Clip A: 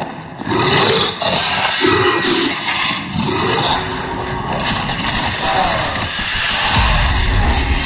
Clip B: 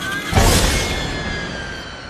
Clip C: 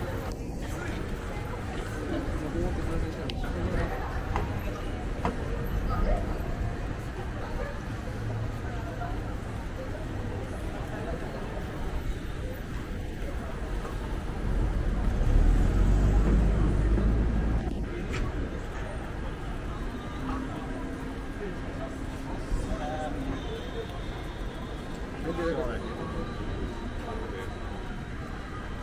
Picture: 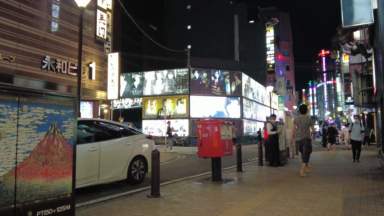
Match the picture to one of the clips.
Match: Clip C